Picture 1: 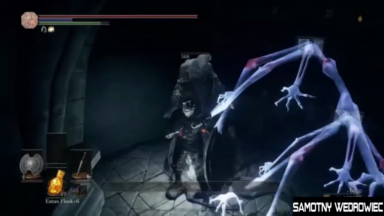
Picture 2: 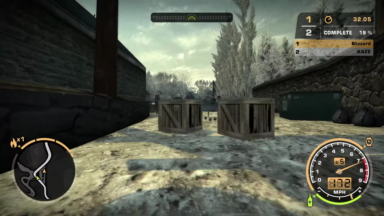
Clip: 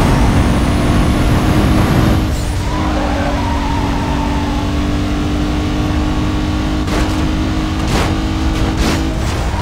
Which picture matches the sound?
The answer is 2